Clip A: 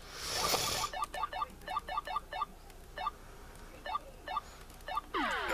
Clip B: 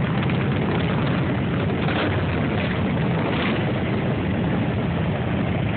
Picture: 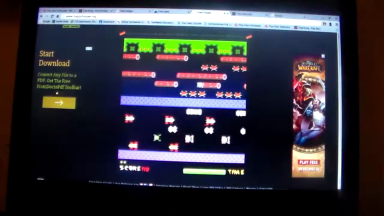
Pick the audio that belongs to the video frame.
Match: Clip A